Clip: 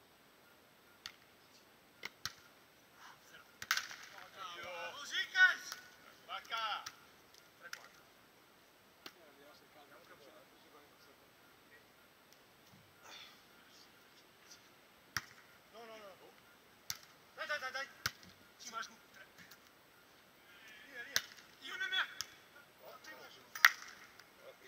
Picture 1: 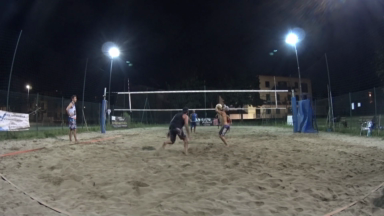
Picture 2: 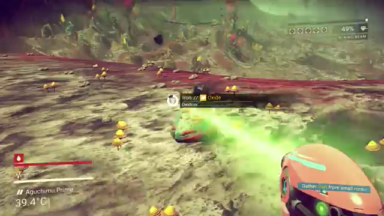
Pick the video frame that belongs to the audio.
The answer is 1